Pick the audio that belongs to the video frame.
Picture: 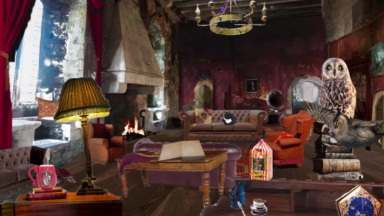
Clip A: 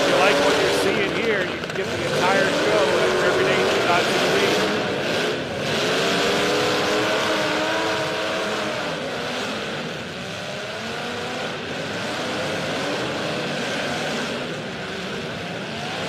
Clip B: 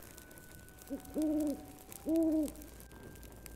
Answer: B